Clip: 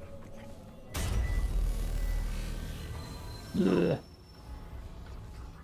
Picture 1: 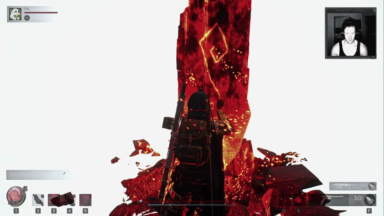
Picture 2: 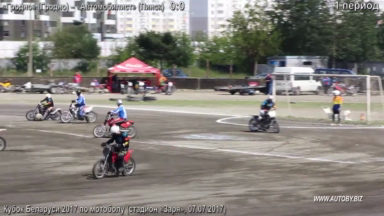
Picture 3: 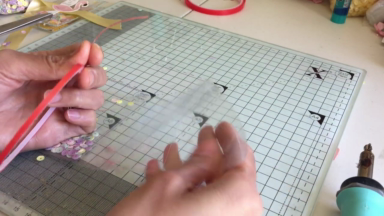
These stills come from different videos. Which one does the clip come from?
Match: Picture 1